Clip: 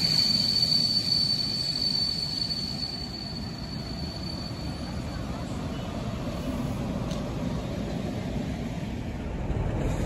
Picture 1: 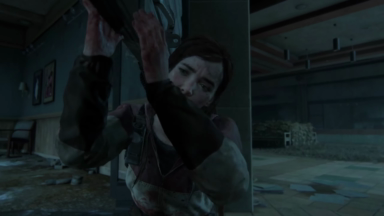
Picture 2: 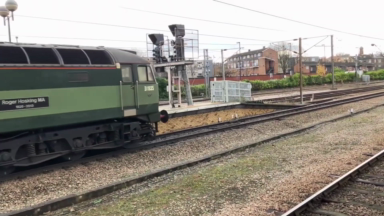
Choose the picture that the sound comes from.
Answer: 2